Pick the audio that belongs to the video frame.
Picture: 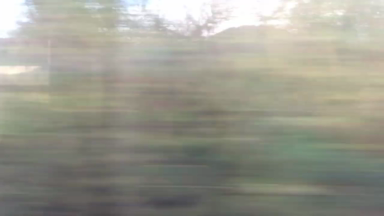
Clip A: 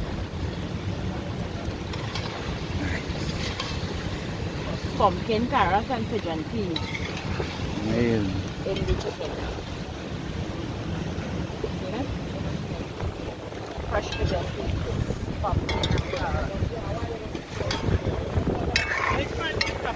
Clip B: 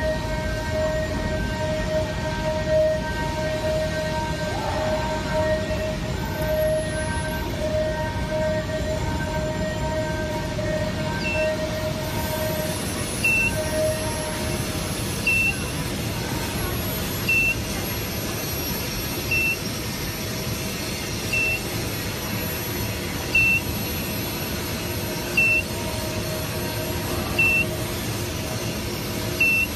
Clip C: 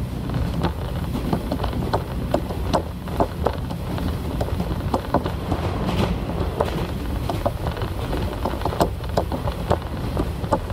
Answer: C